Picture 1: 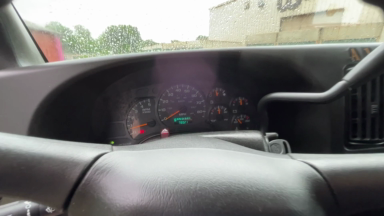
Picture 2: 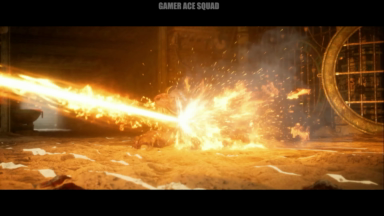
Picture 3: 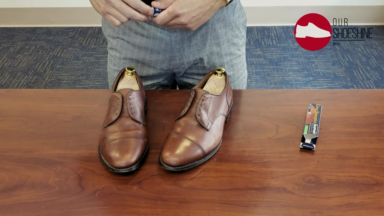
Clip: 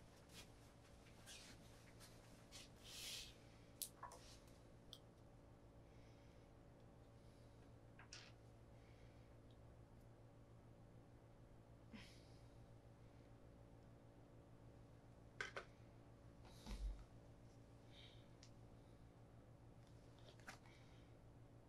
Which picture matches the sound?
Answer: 3